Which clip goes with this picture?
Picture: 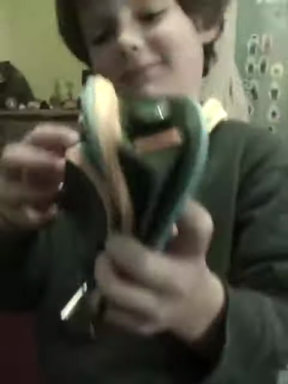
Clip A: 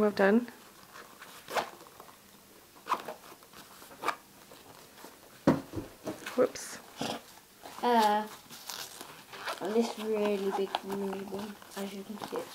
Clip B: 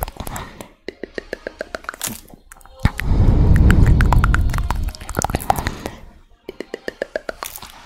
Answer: A